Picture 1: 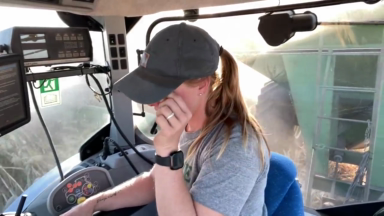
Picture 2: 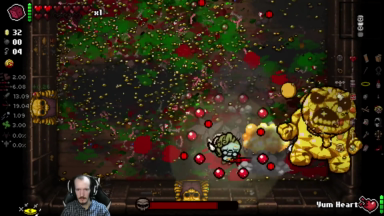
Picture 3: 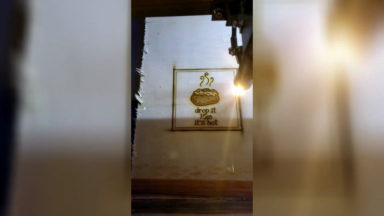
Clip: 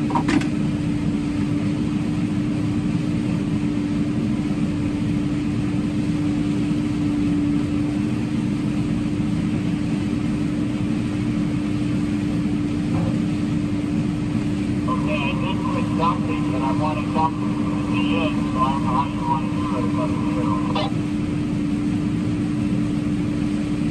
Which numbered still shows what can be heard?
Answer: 1